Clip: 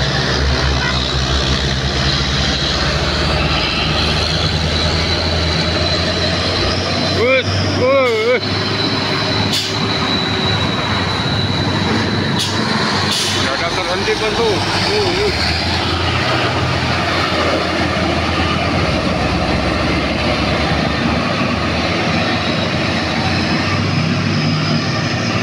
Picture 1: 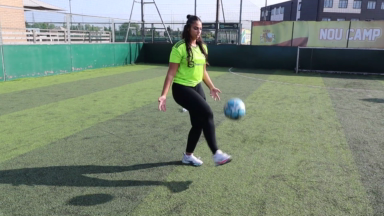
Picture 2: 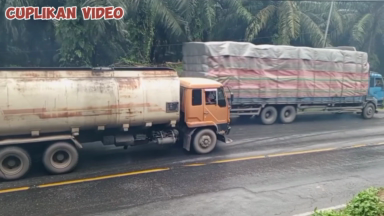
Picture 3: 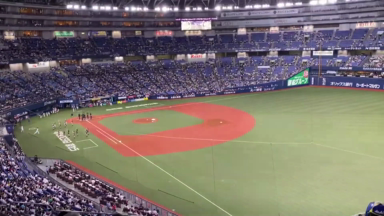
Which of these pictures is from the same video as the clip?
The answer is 2